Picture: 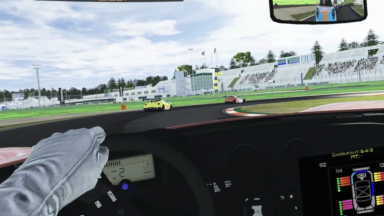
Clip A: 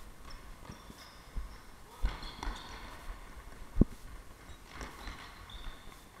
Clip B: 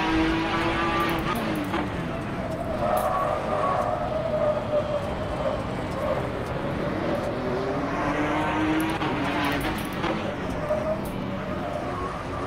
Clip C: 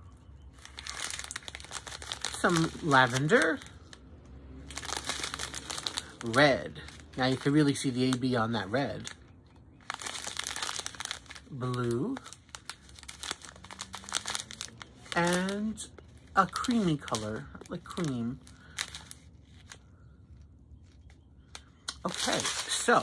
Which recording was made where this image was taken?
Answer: B